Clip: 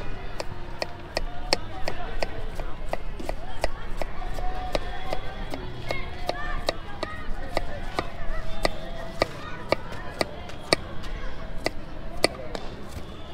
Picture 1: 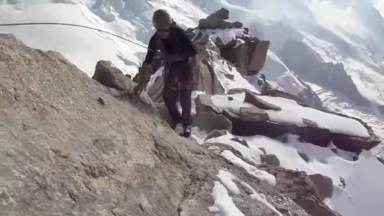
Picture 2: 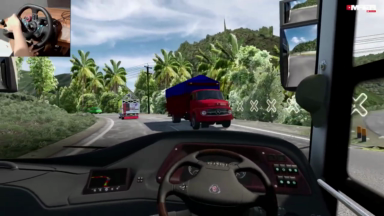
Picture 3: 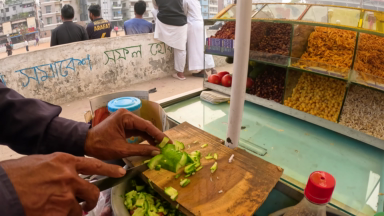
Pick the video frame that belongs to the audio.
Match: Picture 3